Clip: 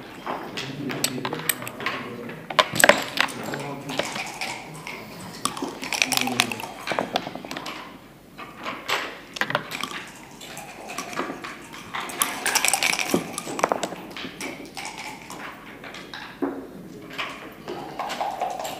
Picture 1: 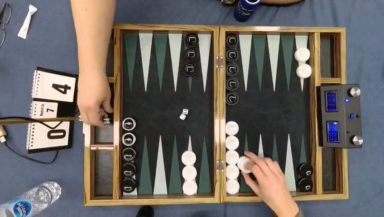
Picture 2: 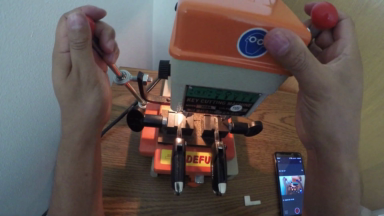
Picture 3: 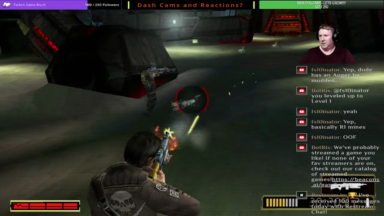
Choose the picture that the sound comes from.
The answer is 1